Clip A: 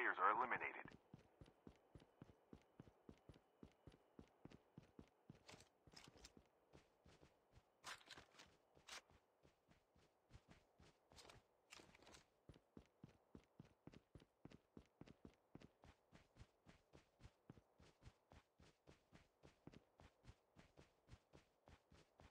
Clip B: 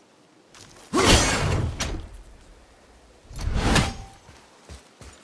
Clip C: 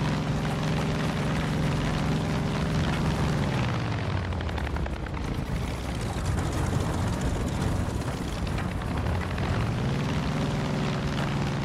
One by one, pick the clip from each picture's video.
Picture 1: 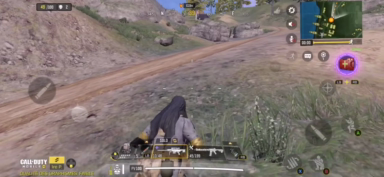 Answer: A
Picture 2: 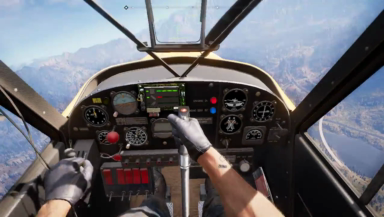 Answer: C